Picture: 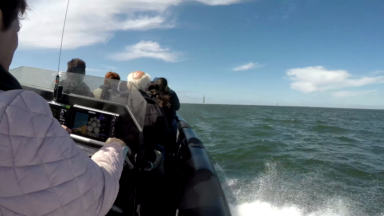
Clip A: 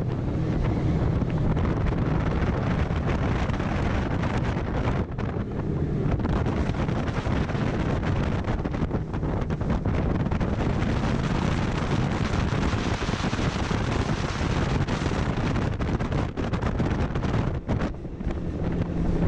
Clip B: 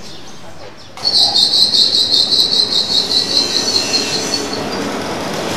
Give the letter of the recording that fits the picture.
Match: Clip A